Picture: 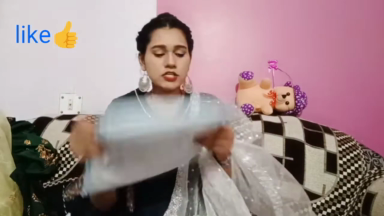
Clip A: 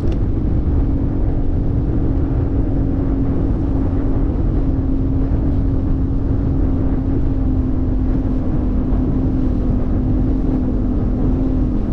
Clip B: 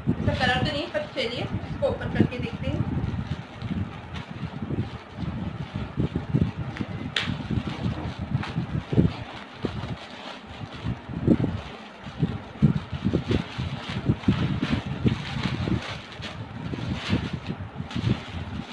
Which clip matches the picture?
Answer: B